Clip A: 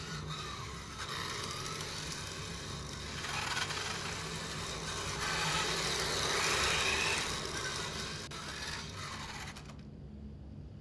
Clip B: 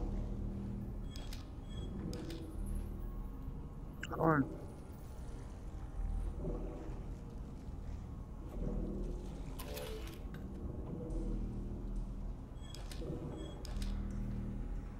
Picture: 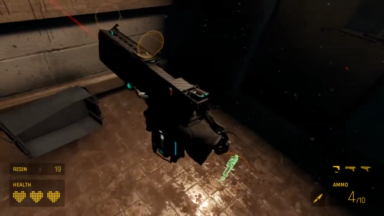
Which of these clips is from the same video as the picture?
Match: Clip B